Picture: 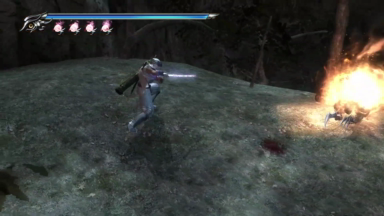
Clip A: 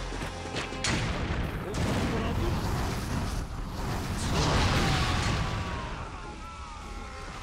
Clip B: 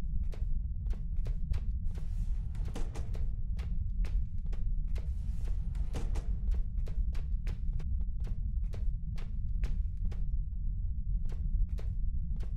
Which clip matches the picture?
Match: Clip A